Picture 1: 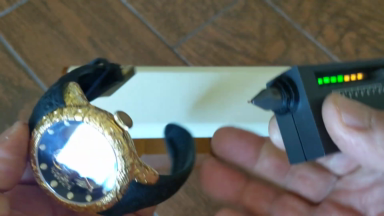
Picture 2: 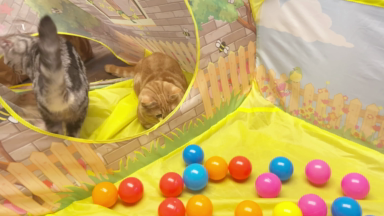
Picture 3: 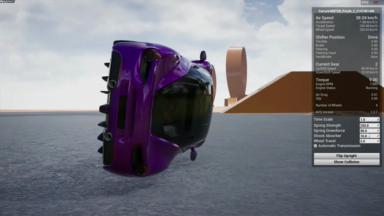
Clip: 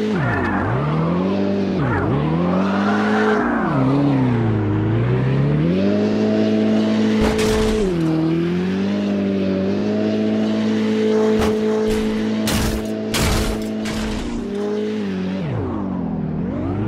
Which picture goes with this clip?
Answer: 3